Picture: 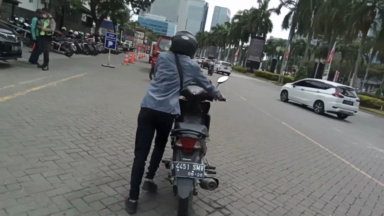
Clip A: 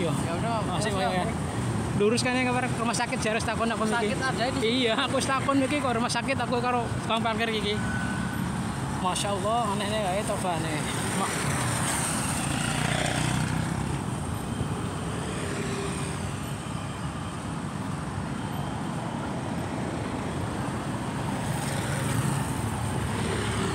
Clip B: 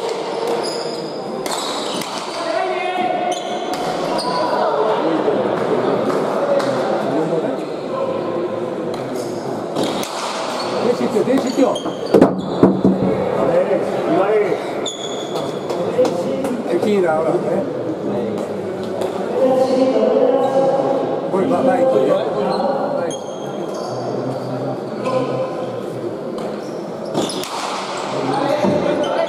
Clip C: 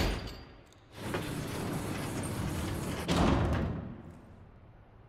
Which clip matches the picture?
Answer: A